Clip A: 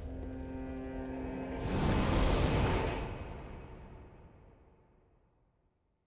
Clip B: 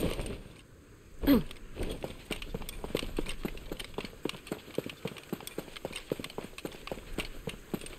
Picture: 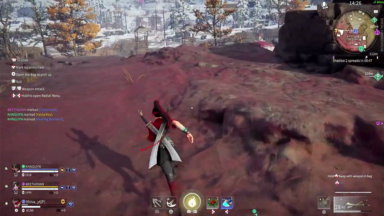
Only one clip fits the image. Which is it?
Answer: B